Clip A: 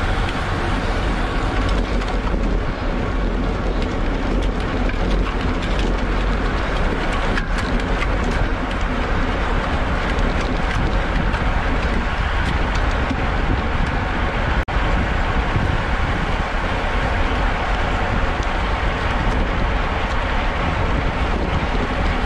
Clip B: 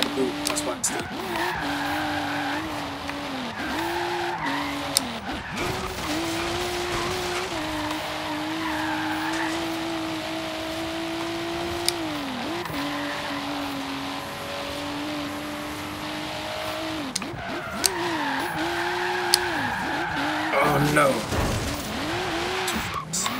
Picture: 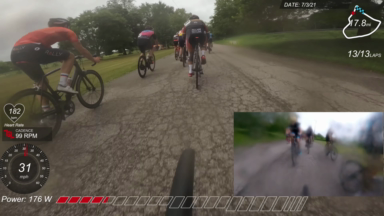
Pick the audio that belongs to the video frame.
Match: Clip A